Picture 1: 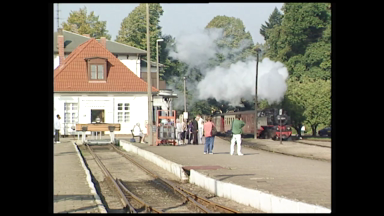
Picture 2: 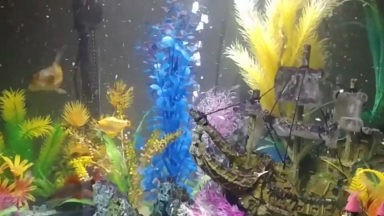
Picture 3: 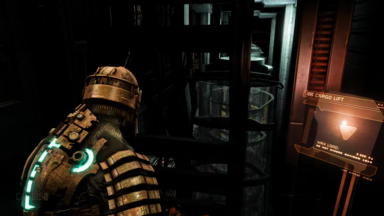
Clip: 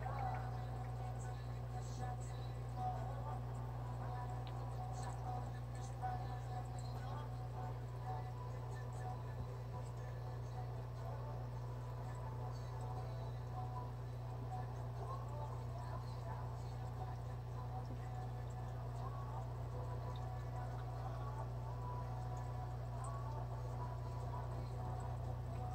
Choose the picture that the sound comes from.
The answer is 2